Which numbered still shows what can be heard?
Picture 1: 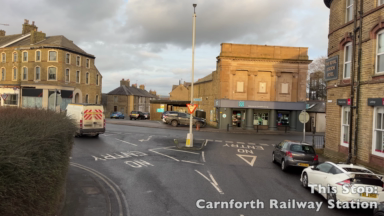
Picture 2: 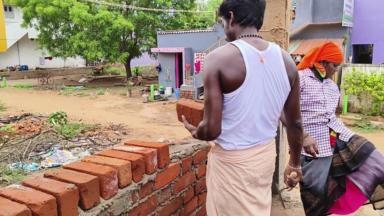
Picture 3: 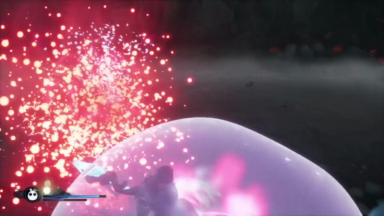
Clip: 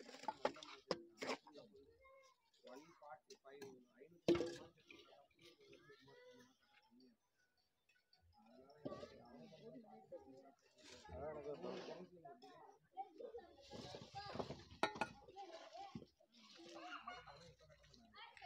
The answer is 2